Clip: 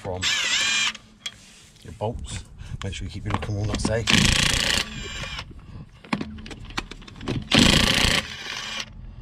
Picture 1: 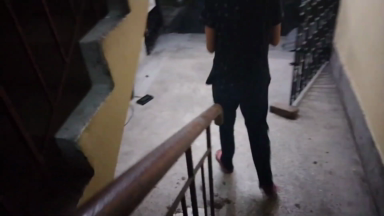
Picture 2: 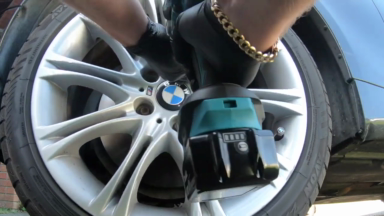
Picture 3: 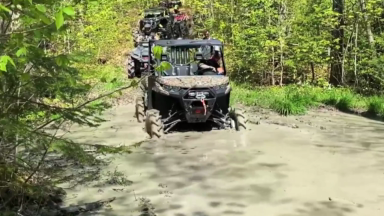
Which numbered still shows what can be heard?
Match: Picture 2